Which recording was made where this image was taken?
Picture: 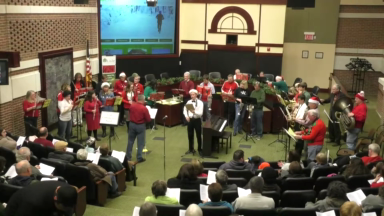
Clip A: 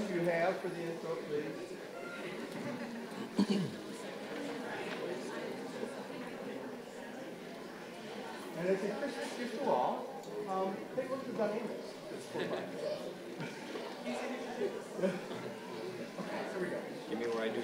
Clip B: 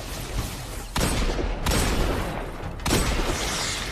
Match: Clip A